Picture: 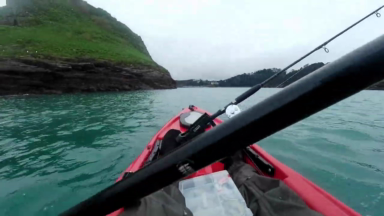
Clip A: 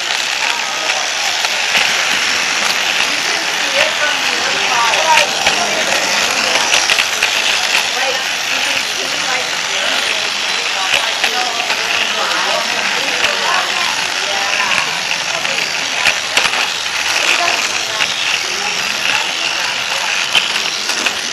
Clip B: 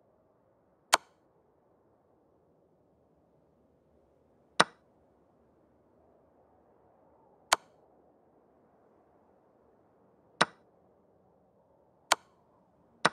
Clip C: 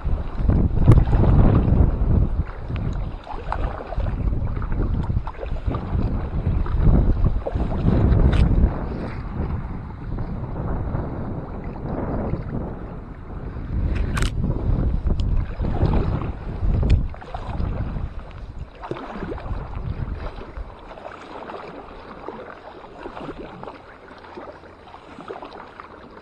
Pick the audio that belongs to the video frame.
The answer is C